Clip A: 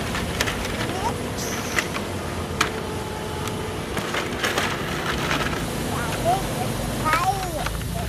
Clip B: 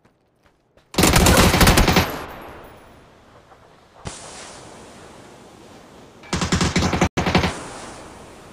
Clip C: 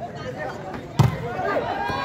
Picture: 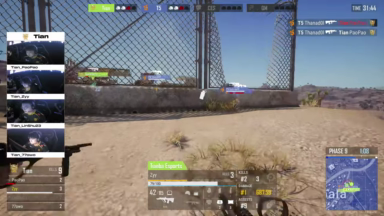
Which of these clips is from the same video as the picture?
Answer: B